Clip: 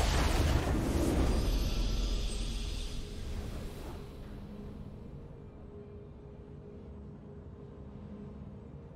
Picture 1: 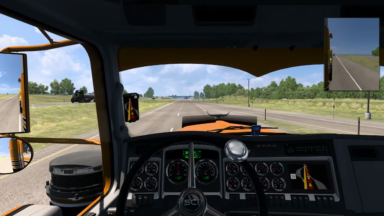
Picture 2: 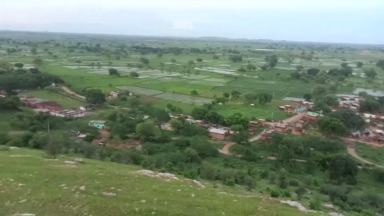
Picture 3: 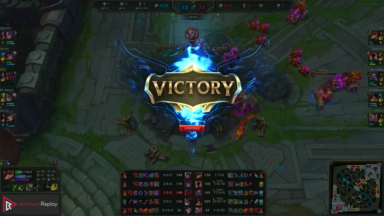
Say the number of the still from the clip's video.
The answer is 3